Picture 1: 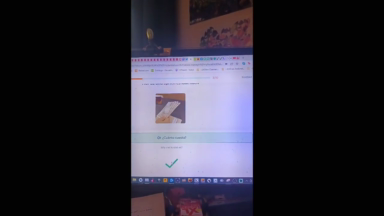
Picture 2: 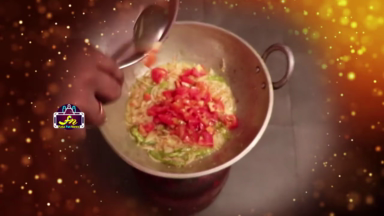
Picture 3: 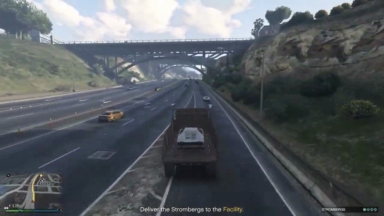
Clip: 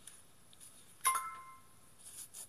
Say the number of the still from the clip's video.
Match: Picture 1